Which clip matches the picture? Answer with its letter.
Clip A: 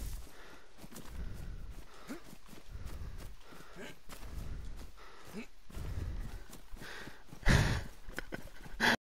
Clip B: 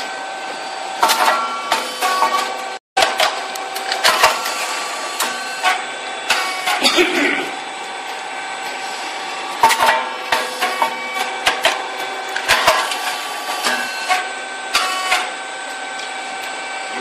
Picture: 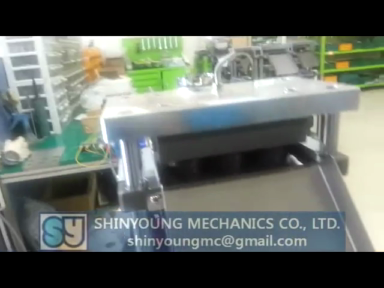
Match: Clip B